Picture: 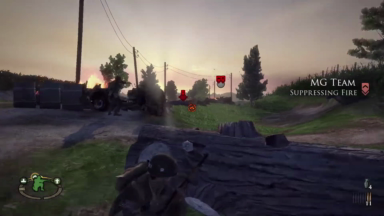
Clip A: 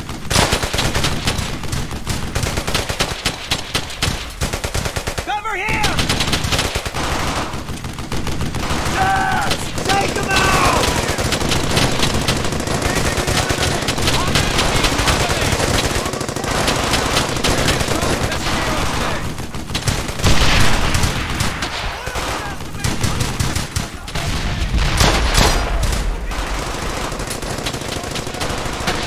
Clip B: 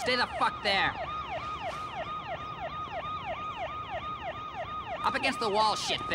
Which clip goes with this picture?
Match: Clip A